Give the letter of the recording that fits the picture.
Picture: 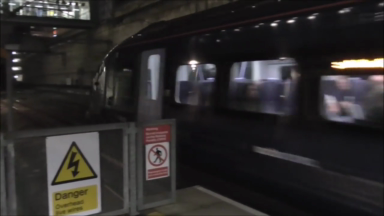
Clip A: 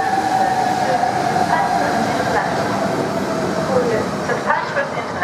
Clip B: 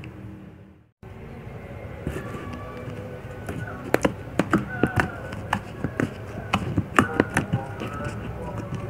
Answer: A